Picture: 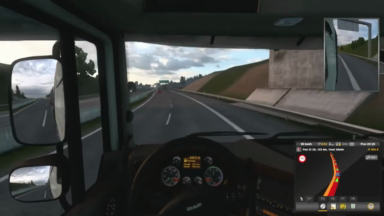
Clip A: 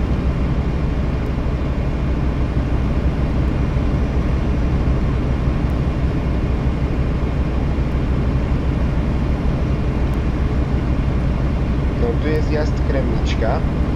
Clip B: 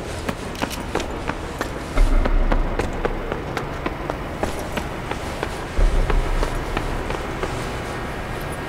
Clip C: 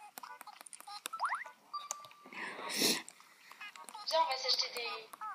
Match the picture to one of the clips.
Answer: A